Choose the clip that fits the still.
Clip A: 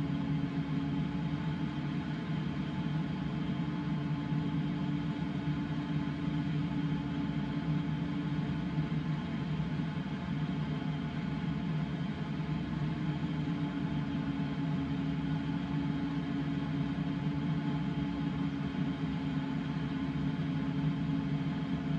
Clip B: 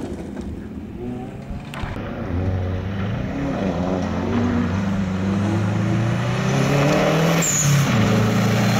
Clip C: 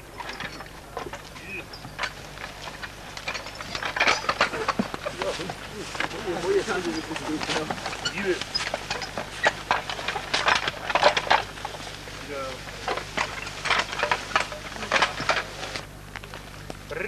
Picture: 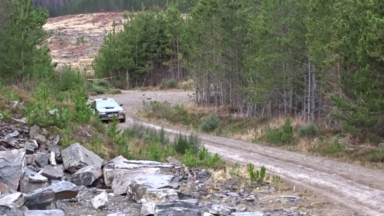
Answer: B